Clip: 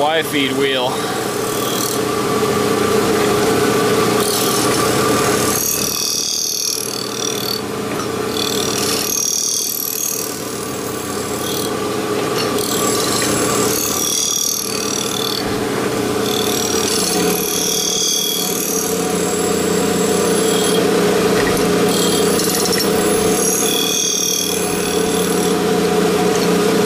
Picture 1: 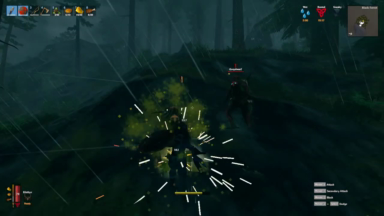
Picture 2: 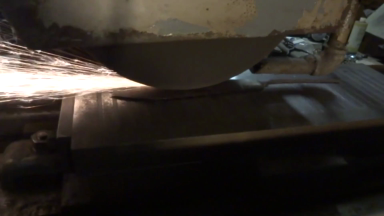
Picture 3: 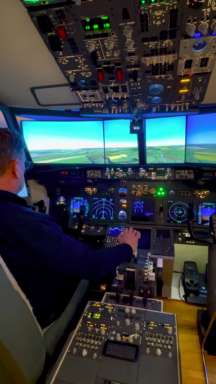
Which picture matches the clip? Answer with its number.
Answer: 2